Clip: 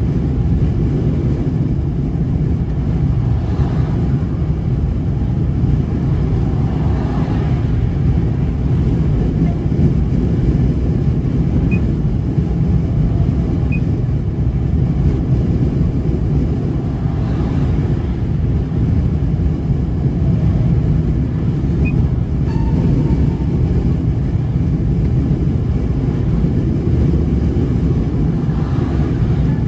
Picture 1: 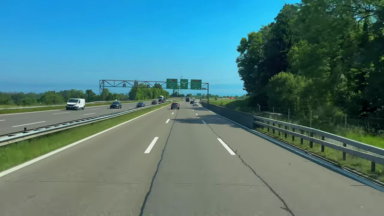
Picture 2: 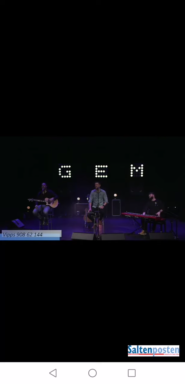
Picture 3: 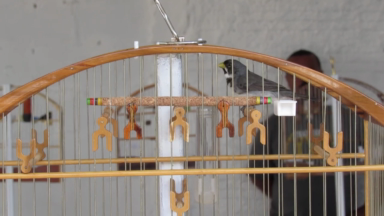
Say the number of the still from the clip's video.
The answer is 1